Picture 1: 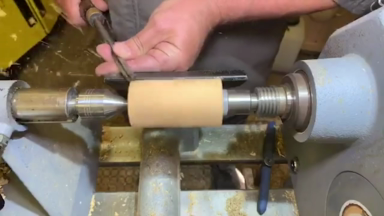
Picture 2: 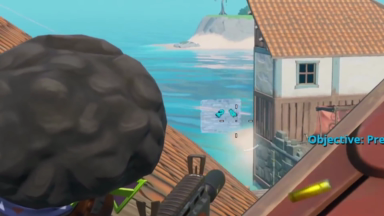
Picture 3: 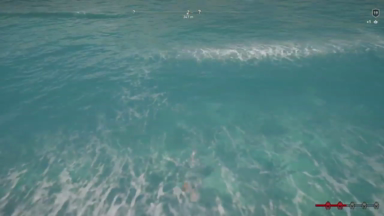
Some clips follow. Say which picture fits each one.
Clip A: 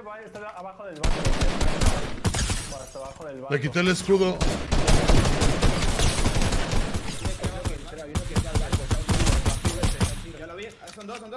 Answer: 2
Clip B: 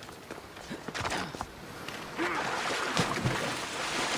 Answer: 3